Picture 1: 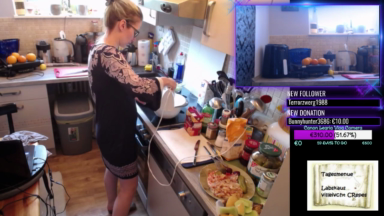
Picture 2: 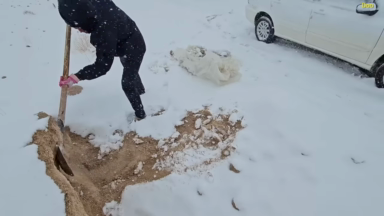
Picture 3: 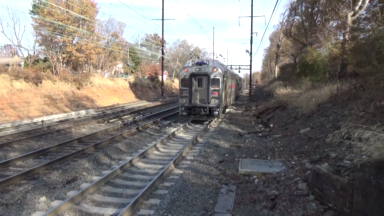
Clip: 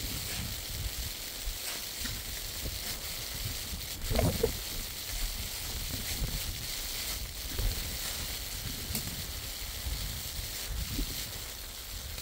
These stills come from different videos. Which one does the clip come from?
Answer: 2